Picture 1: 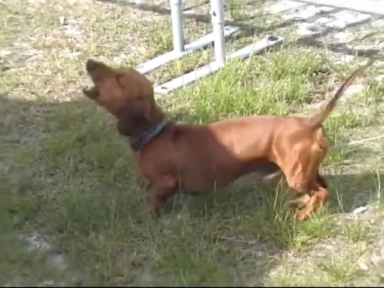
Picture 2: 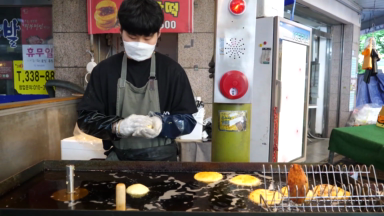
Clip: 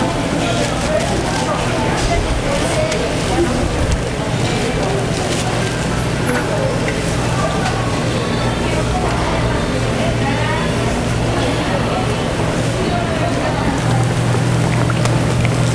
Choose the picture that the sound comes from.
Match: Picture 2